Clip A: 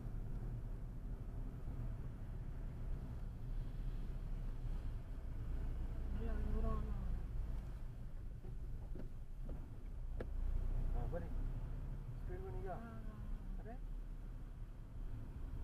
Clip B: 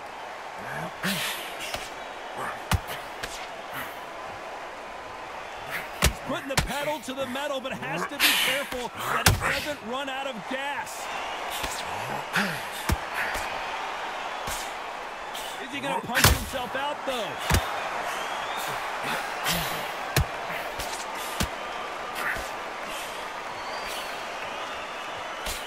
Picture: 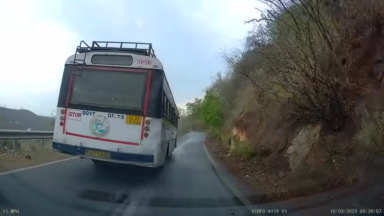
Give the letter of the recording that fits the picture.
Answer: A